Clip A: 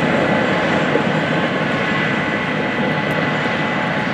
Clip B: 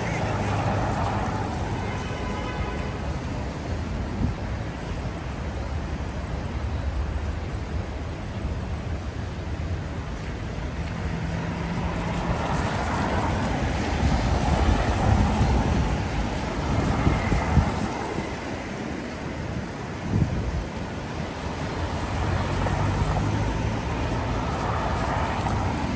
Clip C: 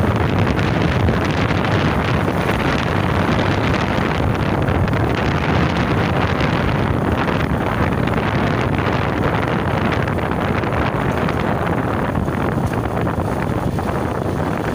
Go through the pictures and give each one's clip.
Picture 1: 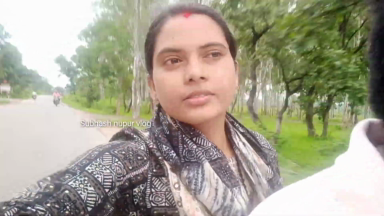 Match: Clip C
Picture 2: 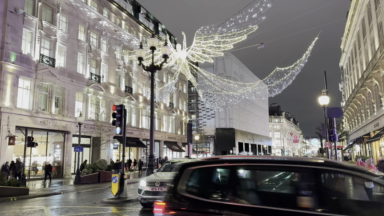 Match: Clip B